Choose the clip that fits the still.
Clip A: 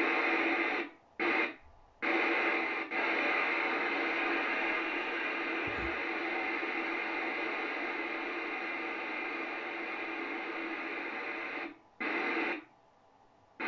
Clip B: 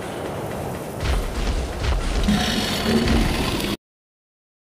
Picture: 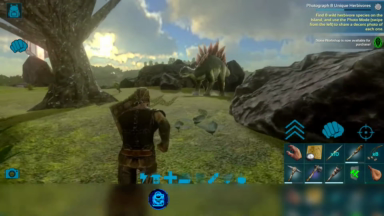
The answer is B